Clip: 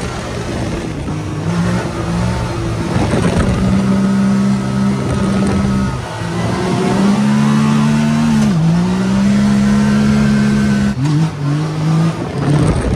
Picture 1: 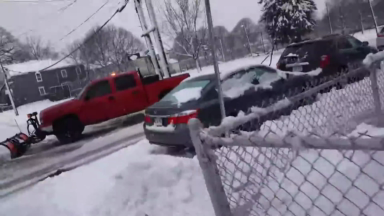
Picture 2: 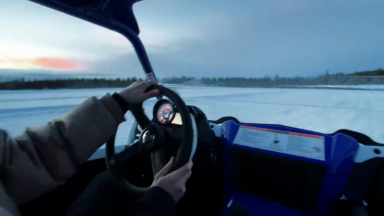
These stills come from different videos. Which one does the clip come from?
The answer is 2